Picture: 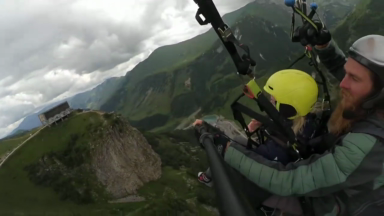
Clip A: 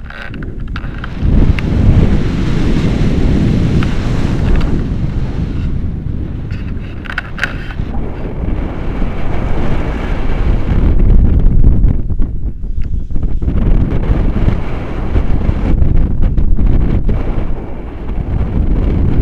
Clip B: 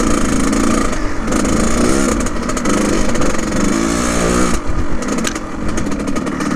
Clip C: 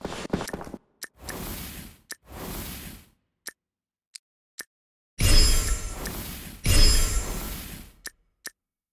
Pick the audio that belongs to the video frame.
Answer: A